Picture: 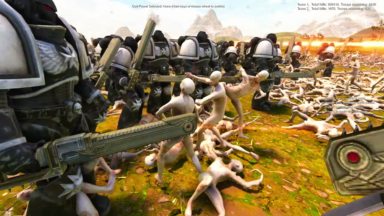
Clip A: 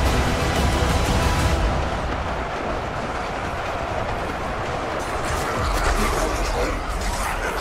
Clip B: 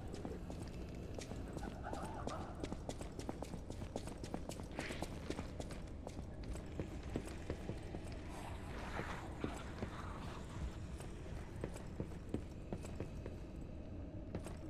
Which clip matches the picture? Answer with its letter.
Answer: A